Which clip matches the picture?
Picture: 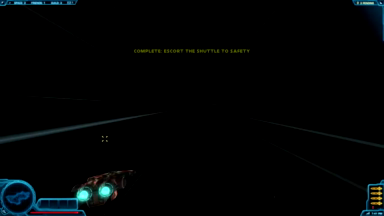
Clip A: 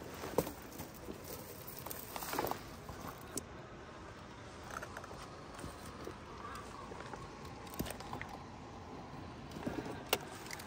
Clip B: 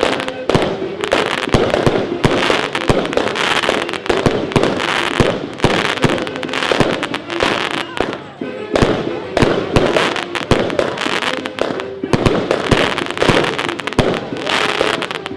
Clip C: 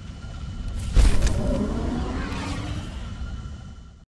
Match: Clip C